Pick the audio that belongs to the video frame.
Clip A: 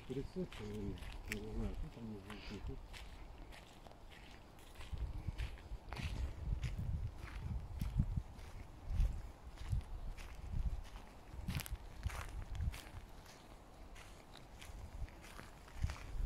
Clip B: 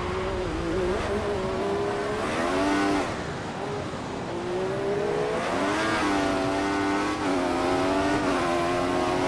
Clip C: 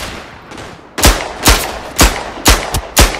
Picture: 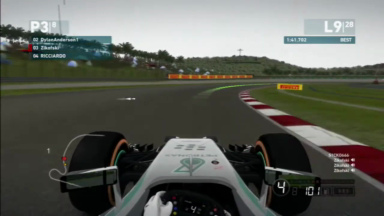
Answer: B